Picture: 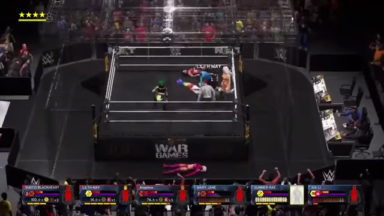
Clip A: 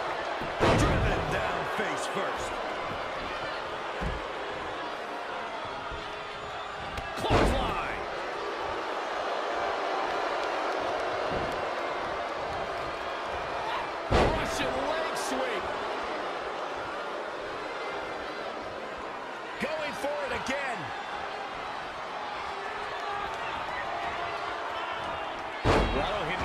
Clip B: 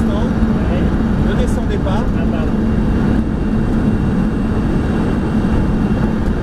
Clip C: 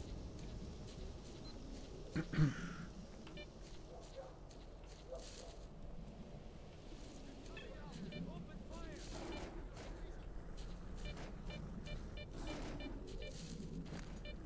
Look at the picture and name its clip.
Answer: A